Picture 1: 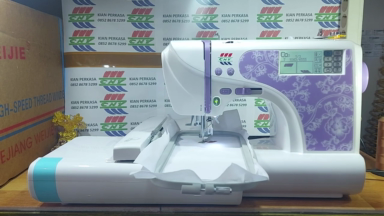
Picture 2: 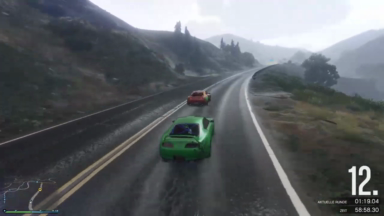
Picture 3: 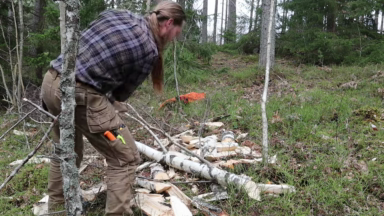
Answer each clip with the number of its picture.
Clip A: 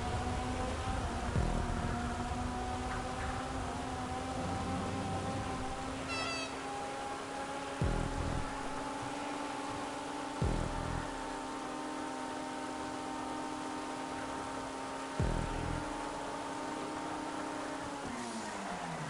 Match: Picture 2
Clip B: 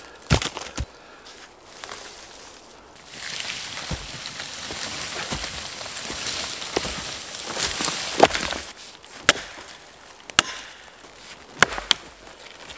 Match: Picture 3